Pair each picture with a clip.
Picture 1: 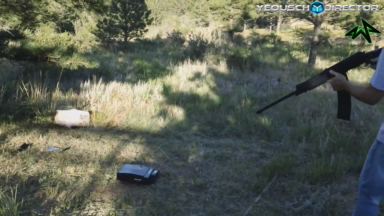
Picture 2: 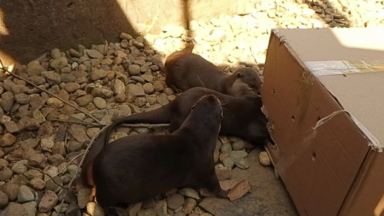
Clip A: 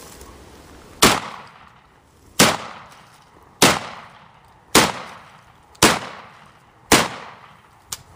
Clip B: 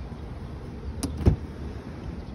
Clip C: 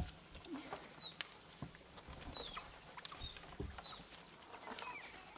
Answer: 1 A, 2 C